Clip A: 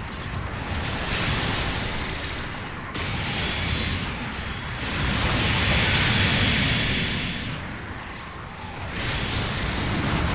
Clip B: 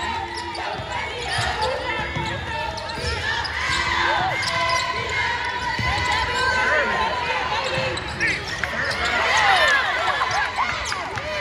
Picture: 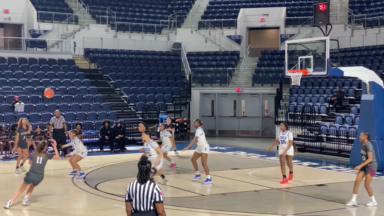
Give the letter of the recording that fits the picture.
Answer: B